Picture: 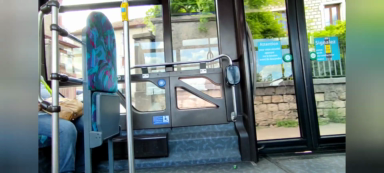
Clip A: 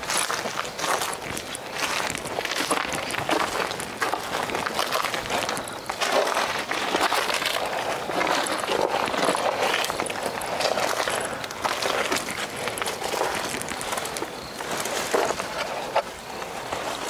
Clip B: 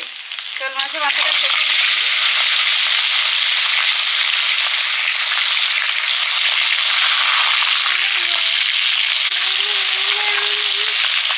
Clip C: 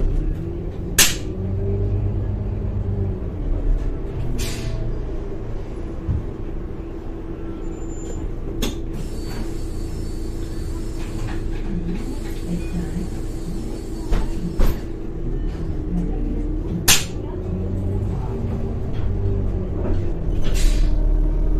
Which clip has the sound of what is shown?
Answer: C